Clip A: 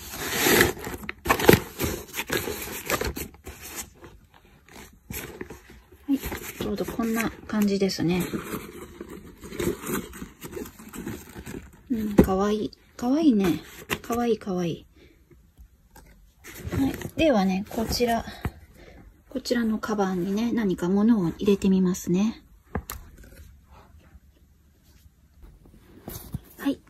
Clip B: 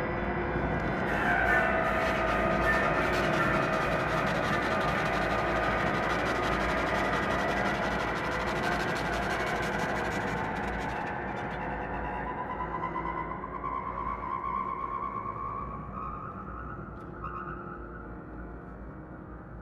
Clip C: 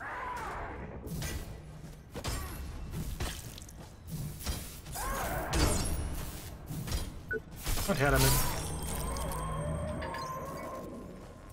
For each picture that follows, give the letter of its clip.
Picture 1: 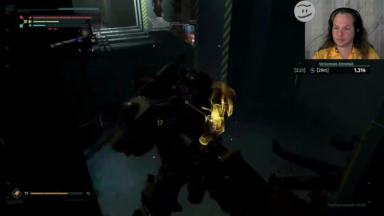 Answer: C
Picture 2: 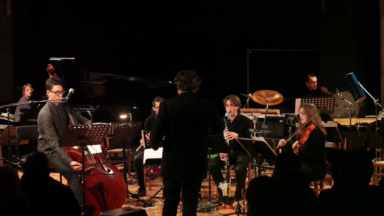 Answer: B